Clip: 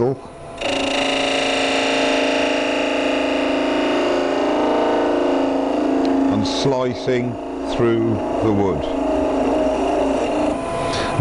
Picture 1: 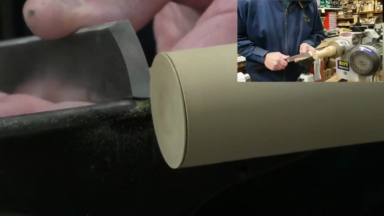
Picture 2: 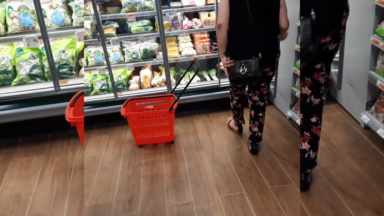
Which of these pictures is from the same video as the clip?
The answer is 1